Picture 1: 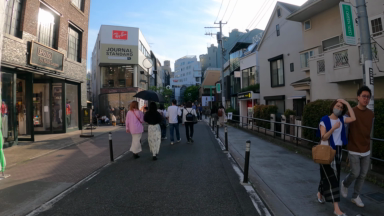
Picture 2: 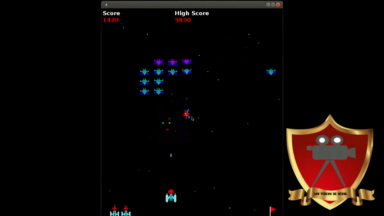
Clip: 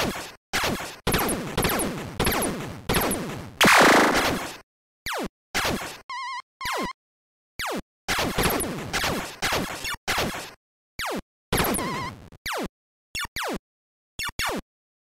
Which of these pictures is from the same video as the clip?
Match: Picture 2